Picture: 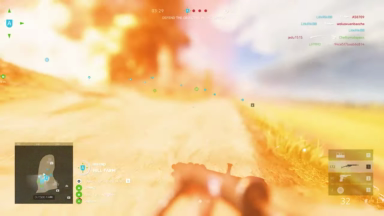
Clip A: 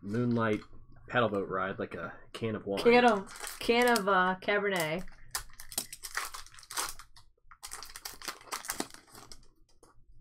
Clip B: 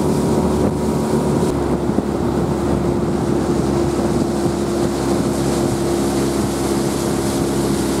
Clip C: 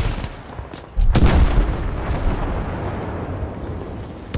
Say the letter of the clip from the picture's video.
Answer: C